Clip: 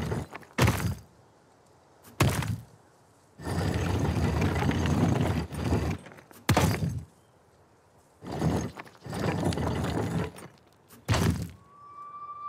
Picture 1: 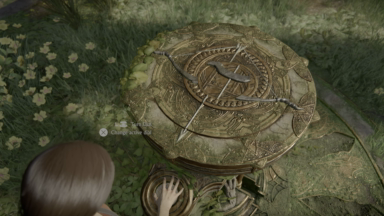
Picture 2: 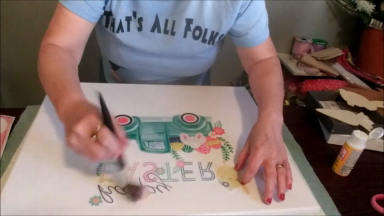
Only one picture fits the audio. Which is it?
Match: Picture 1